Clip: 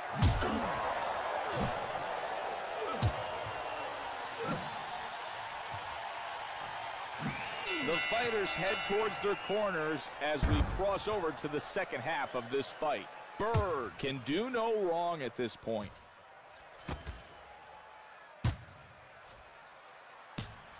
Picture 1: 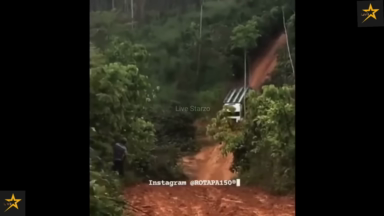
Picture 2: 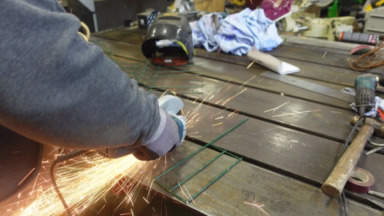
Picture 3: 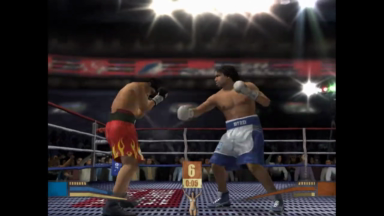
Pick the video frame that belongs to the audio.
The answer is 3